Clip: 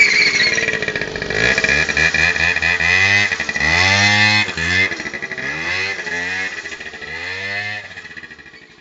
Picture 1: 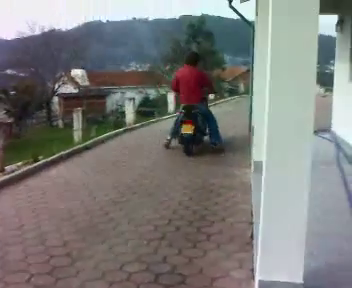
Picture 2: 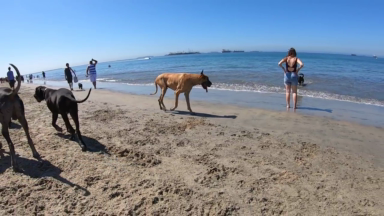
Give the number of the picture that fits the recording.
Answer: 1